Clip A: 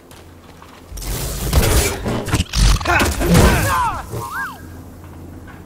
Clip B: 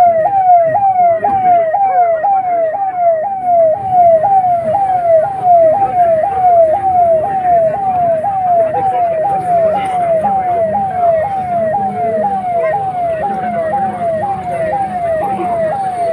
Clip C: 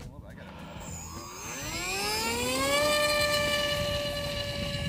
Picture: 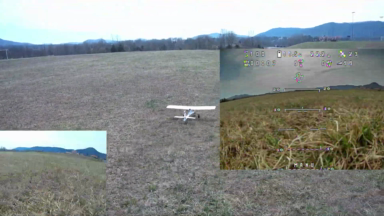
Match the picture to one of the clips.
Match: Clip C